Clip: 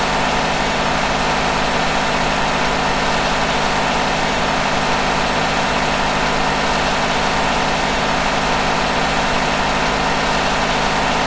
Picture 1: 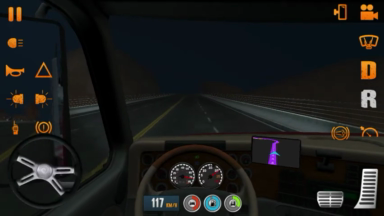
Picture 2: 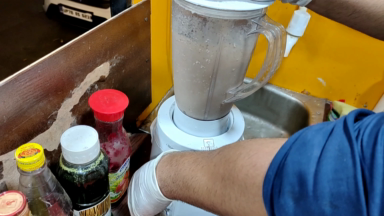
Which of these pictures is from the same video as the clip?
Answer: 1